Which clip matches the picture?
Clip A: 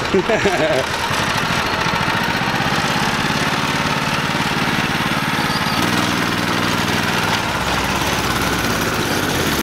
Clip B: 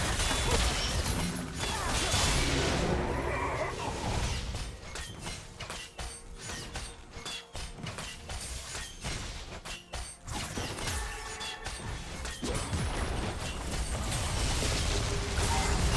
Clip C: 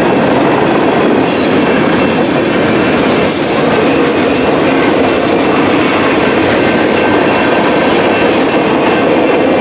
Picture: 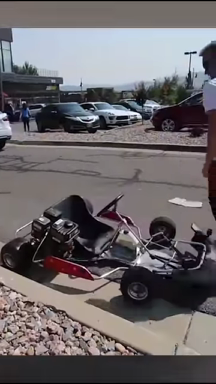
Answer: A